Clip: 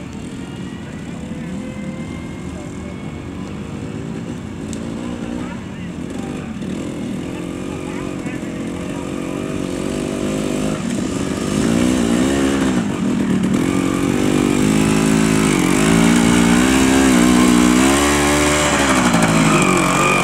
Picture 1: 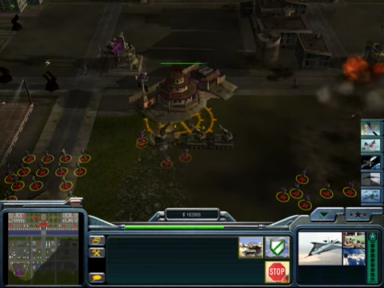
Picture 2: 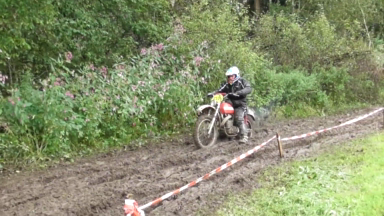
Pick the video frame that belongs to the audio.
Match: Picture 2